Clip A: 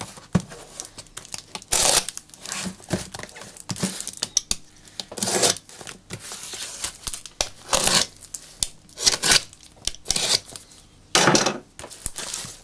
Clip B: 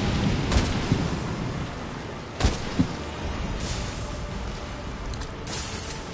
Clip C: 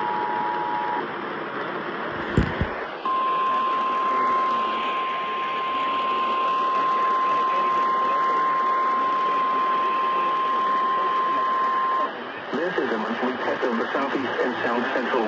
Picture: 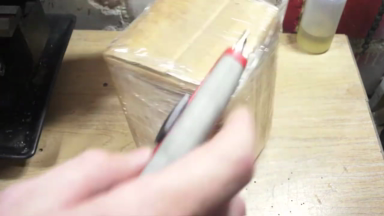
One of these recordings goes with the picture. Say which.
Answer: A